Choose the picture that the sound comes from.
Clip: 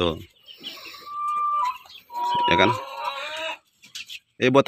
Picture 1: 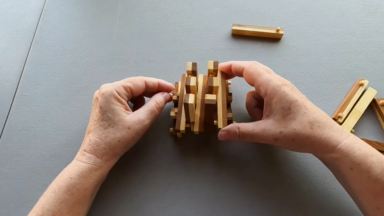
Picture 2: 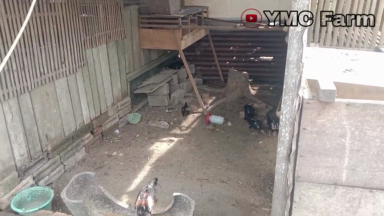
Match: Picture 2